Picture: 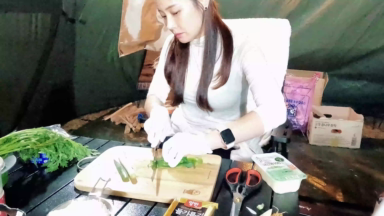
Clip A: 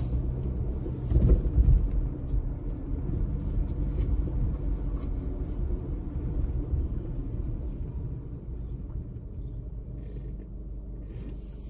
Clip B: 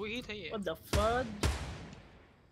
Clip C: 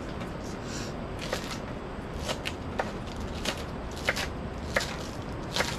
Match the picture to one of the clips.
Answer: C